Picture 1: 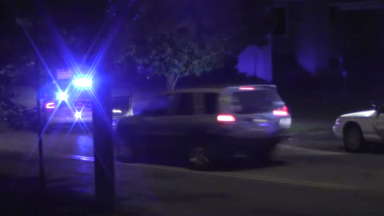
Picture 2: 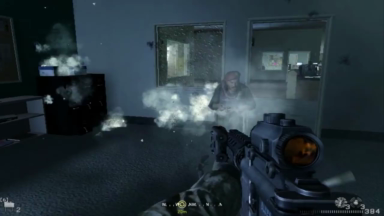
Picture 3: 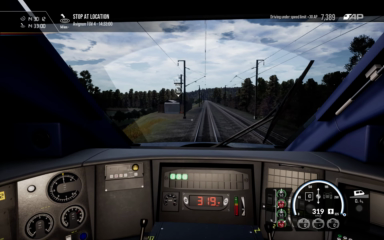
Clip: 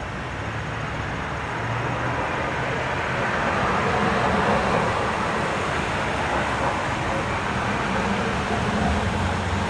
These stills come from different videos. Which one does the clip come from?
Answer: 1